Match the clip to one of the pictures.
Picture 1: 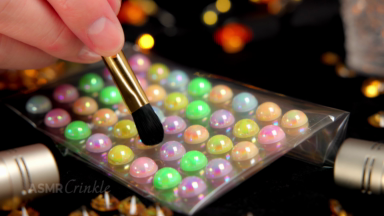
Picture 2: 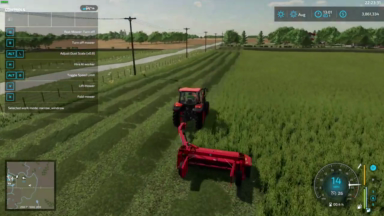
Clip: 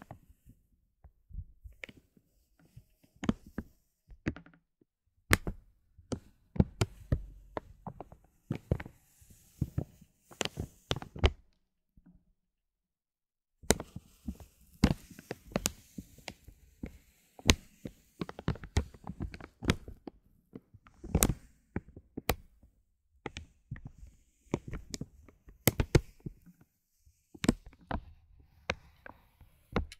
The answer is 1